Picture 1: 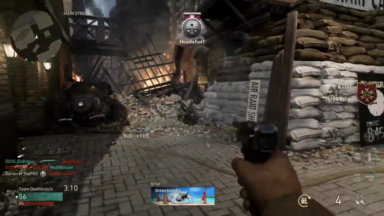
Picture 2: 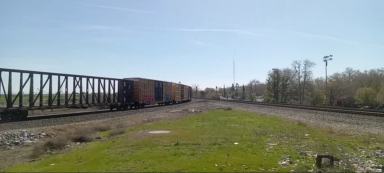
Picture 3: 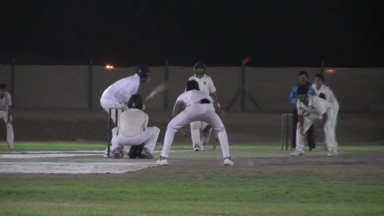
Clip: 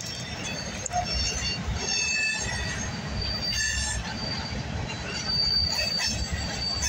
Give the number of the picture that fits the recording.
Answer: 2